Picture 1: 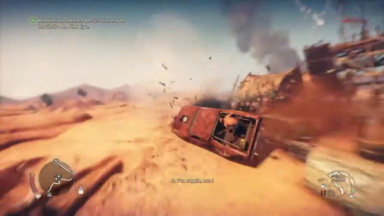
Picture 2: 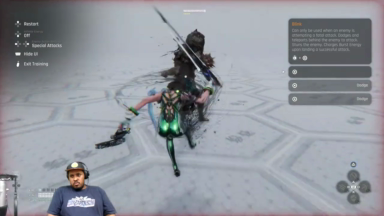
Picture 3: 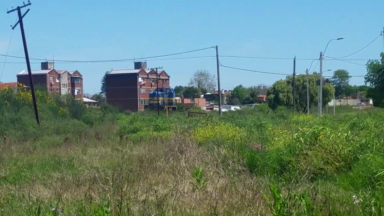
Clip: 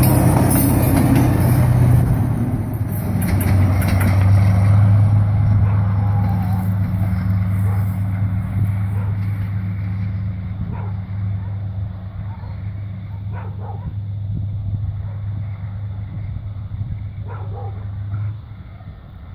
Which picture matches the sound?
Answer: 3